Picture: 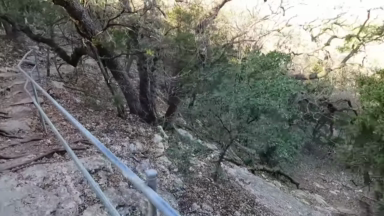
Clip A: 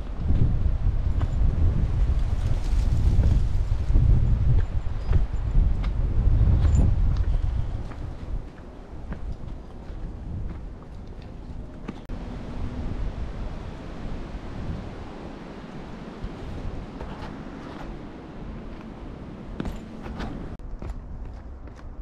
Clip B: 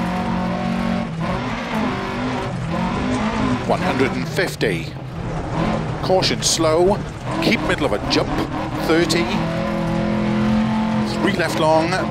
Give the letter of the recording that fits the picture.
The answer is A